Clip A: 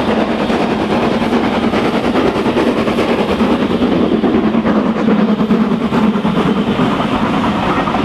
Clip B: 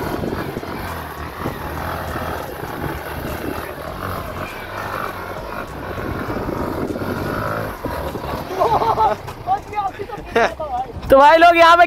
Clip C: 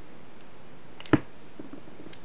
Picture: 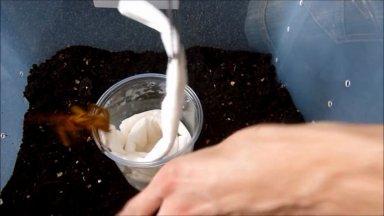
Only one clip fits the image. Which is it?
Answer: C